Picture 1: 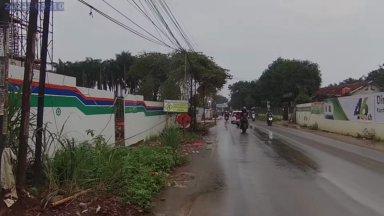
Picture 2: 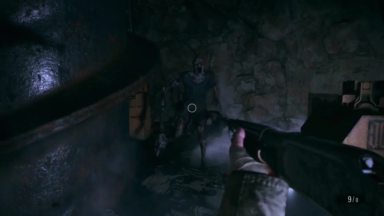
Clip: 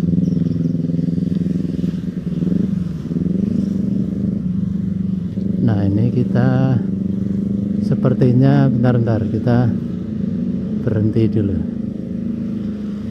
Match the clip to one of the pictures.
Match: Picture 1